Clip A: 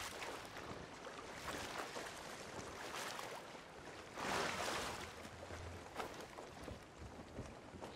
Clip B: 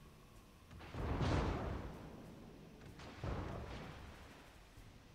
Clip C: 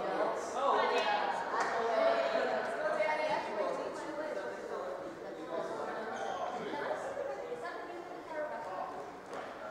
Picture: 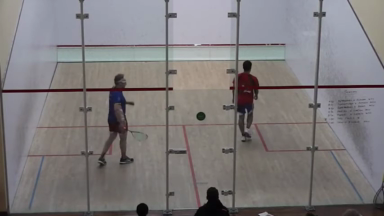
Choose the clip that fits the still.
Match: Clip C